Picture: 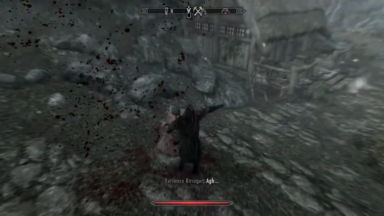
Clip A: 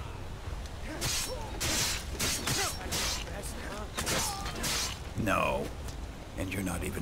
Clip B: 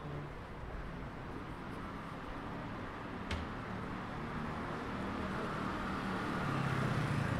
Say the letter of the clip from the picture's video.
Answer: A